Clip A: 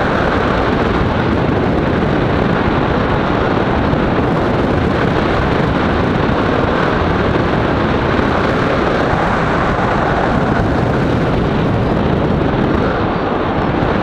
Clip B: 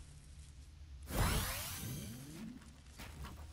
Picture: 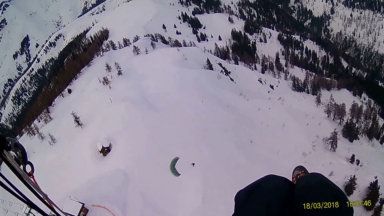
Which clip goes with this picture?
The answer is A